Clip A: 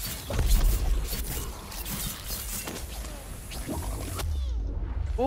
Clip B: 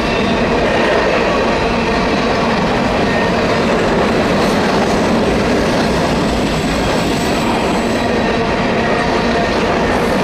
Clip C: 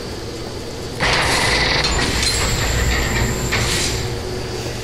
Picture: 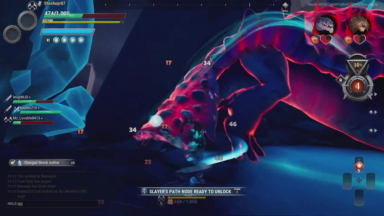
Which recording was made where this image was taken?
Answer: A